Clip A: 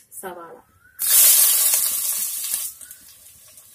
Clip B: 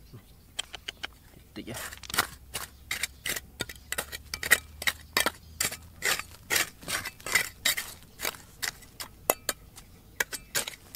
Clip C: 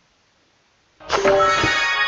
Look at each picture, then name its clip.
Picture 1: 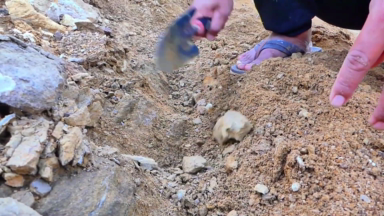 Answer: B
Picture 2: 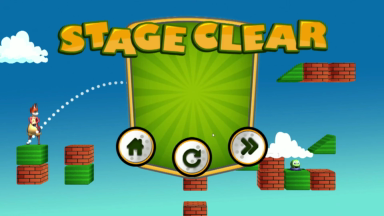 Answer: C